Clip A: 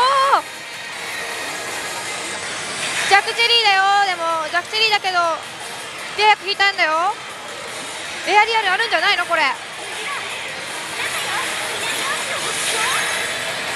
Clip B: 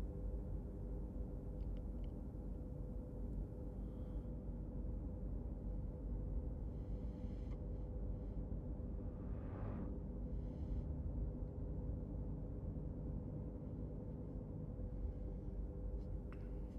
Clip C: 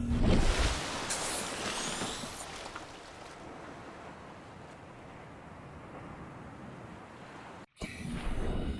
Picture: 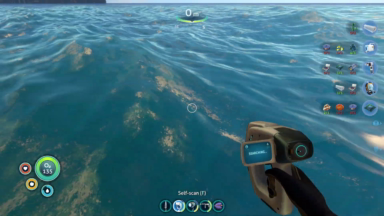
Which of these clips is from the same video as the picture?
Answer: C